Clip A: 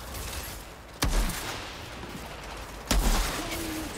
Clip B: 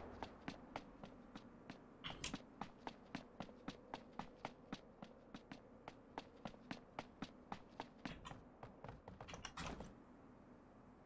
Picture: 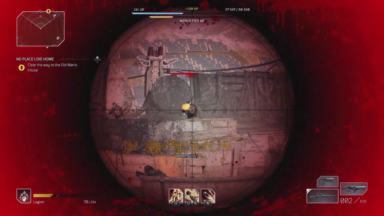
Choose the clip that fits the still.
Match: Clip A